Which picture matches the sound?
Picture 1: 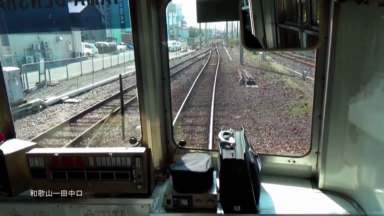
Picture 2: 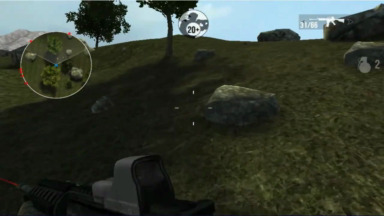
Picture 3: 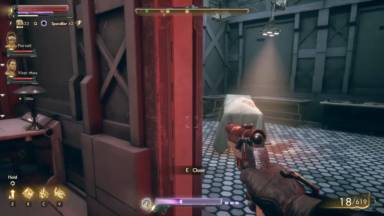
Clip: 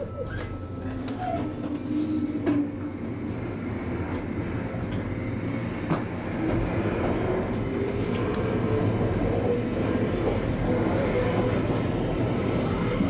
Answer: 1